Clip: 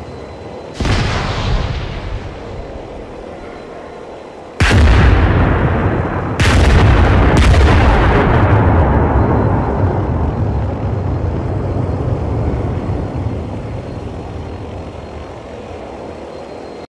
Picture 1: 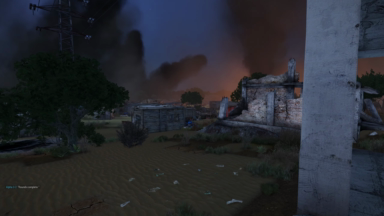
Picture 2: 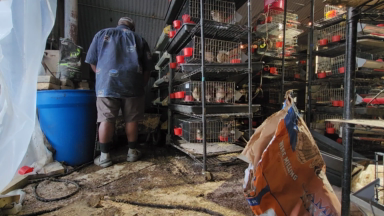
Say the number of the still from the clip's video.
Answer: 1